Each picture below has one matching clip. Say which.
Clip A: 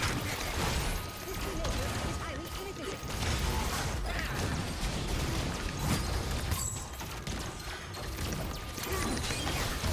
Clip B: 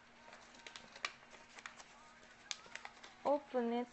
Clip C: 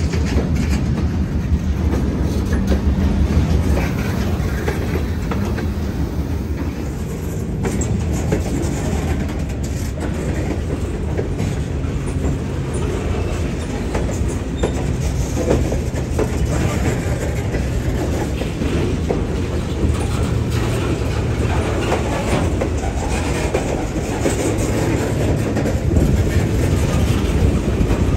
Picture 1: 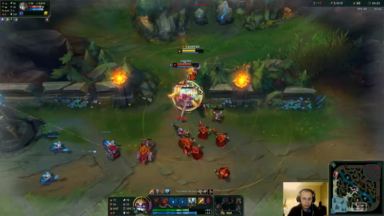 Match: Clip A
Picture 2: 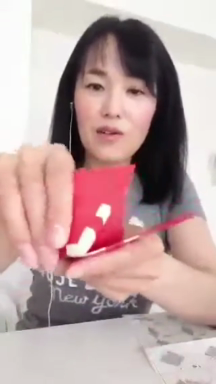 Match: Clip B